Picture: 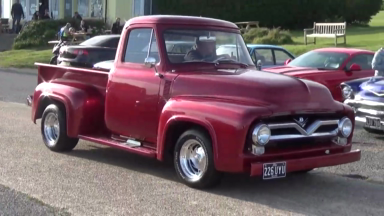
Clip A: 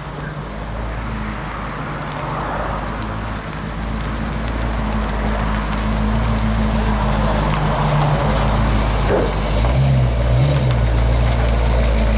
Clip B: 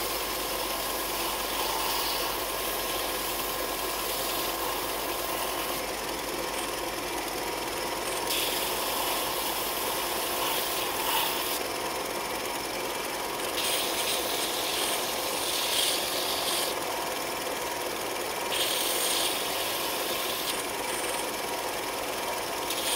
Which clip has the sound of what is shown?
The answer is A